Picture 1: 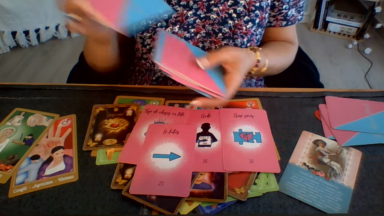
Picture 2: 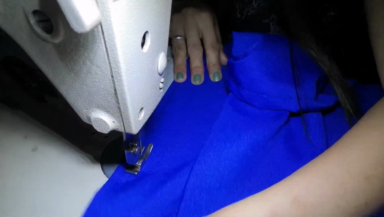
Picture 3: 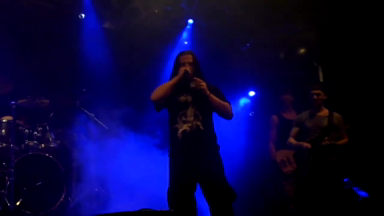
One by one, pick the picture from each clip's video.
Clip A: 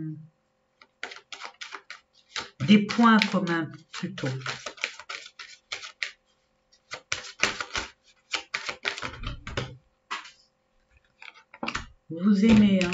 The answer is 1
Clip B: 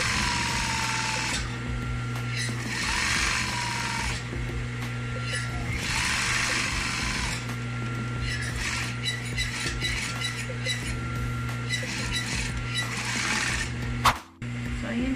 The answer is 2